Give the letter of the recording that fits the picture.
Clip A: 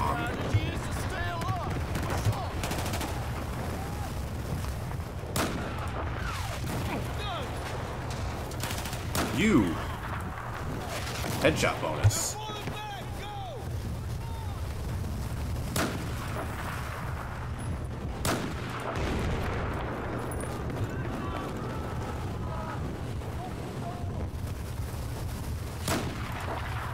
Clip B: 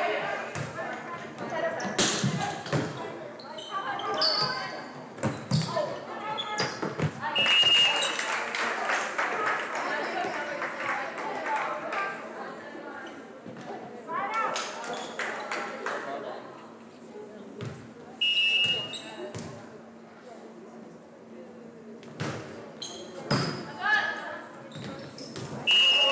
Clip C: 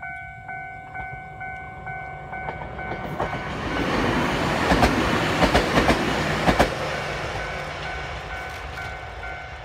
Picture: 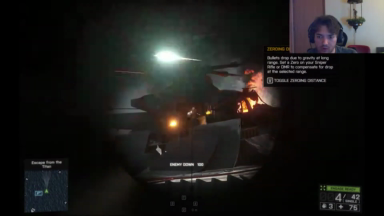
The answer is A